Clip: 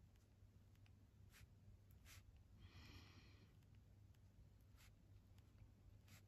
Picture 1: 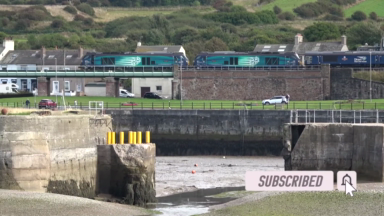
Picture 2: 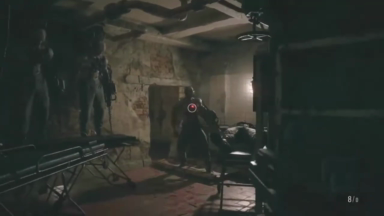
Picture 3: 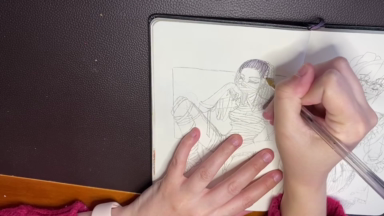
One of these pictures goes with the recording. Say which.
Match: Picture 3